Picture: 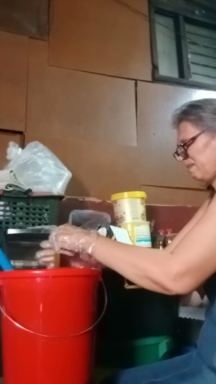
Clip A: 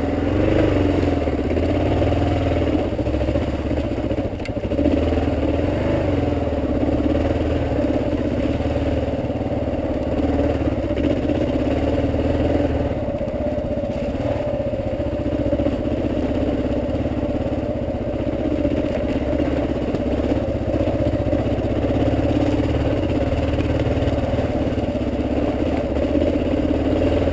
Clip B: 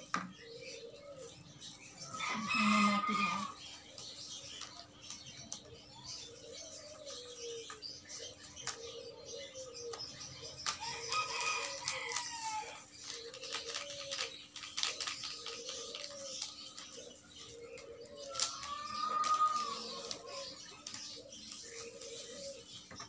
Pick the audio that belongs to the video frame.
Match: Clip B